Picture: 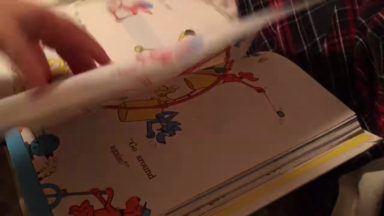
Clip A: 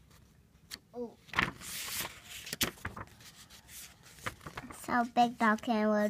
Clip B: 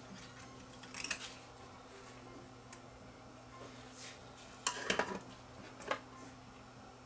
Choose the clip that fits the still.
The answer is A